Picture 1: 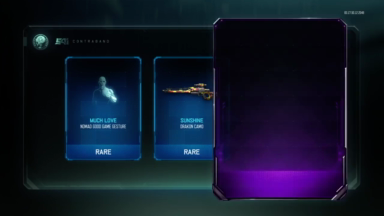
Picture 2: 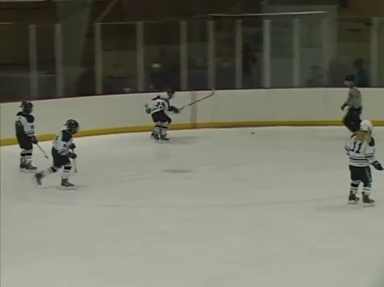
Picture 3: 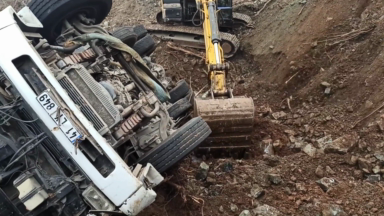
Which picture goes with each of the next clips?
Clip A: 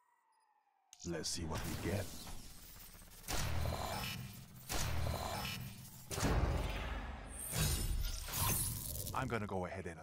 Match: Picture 1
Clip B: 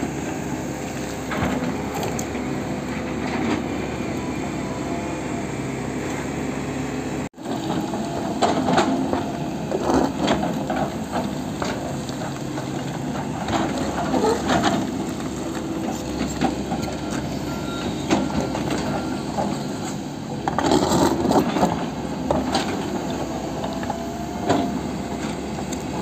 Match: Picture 3